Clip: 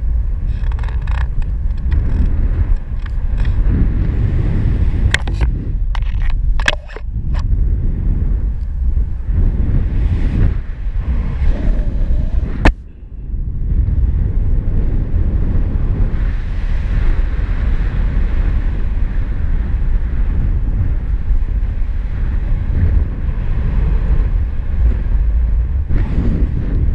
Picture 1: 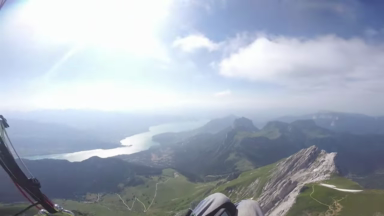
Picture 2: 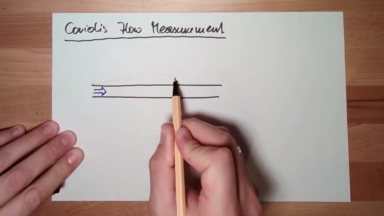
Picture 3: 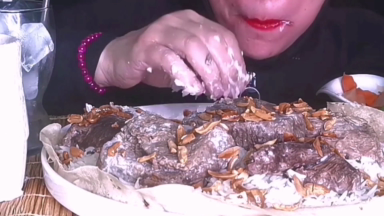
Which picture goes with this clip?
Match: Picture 1